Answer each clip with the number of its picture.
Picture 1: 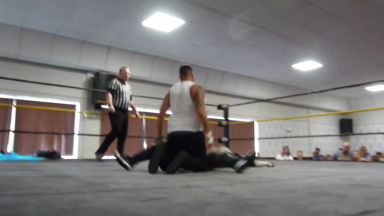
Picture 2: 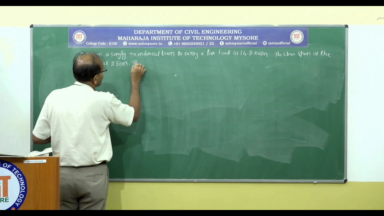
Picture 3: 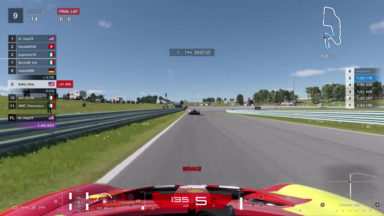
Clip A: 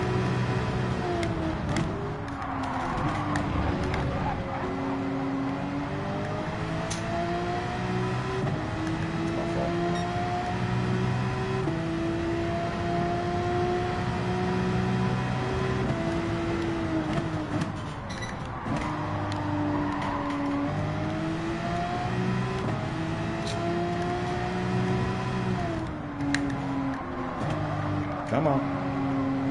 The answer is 3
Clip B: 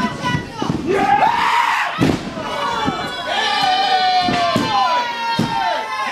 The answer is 1